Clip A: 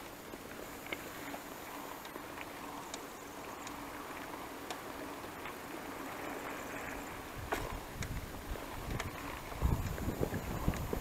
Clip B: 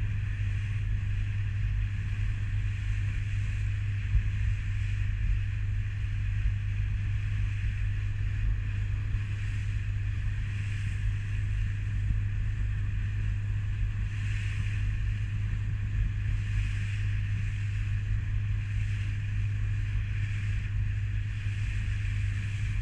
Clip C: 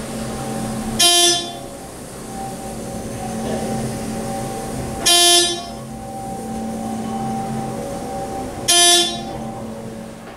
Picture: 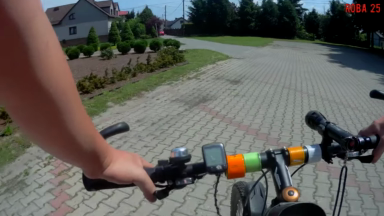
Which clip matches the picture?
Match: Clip A